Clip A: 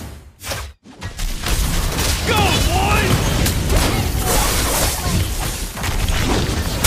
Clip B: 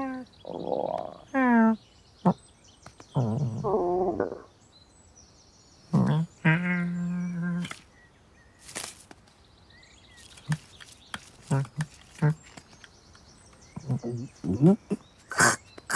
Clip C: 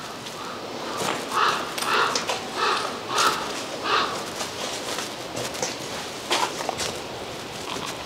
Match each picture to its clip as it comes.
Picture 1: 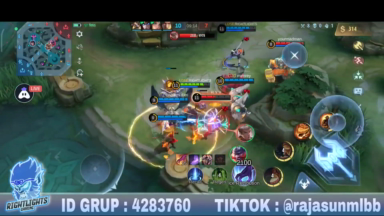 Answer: A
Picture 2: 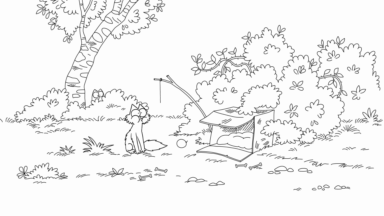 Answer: B